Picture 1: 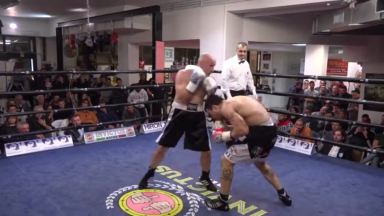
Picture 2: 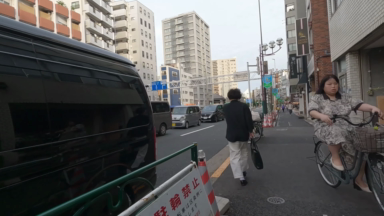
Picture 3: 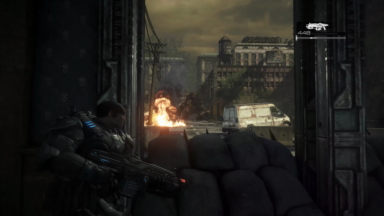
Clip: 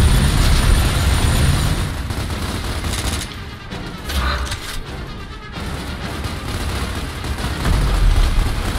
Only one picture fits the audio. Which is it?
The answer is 3